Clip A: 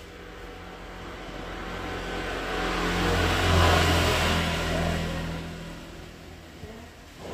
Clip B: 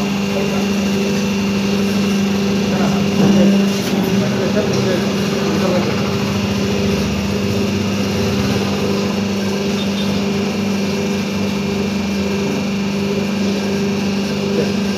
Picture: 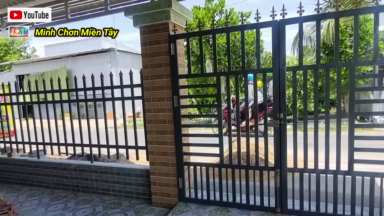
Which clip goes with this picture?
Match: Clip A